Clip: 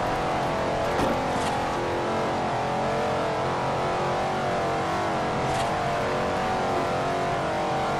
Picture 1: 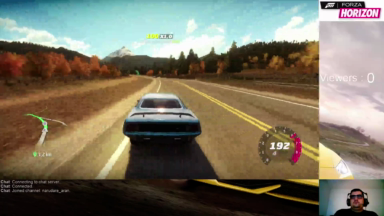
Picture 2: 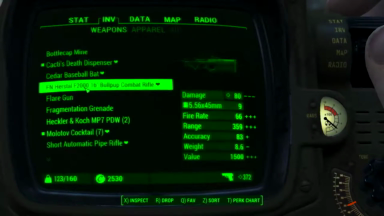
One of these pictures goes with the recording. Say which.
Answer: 1